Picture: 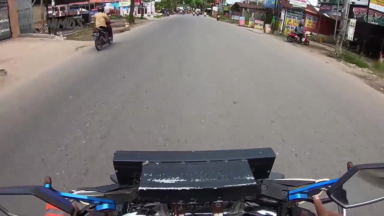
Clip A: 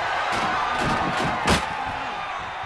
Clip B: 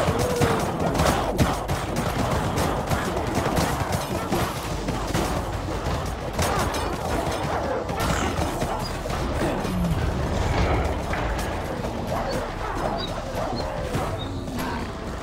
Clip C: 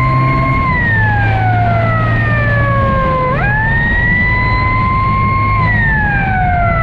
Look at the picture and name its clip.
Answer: C